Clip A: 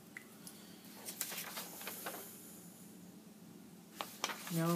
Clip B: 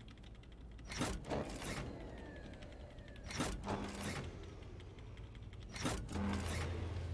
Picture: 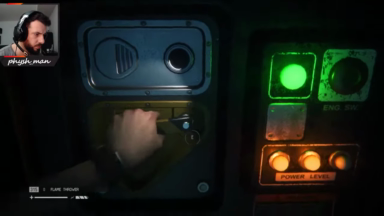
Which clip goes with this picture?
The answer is B